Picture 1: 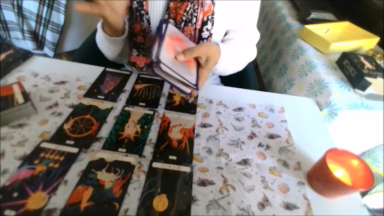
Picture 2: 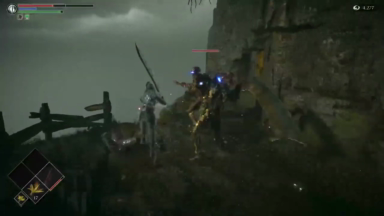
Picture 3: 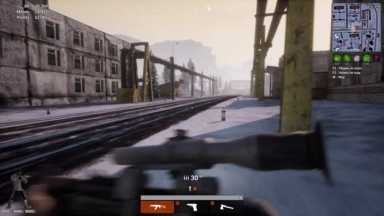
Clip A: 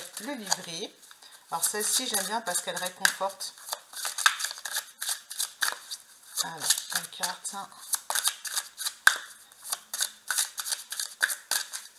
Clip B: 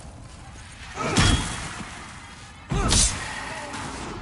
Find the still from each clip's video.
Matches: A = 1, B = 2